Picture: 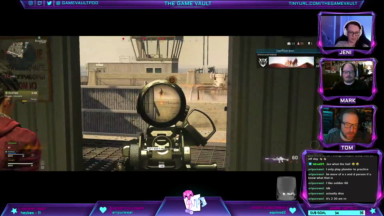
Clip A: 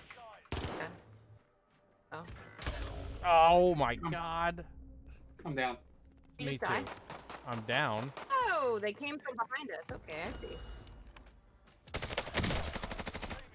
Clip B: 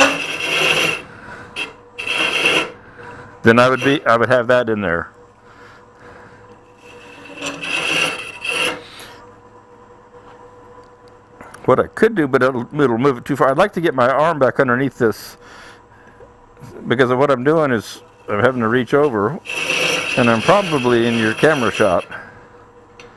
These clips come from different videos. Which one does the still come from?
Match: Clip A